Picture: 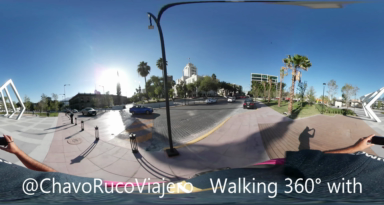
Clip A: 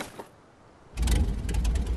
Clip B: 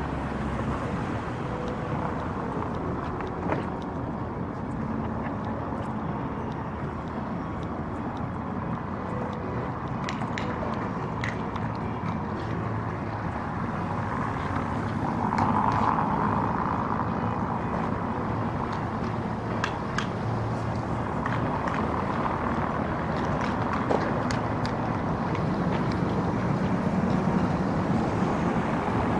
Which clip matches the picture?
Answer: B